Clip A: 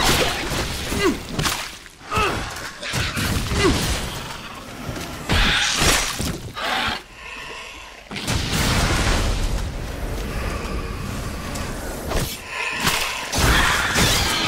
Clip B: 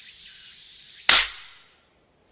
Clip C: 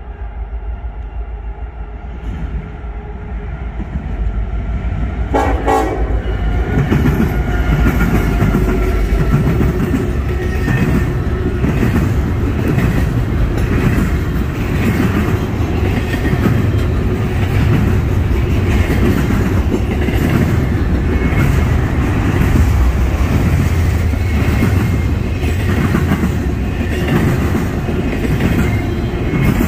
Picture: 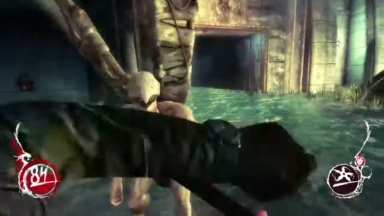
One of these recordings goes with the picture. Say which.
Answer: A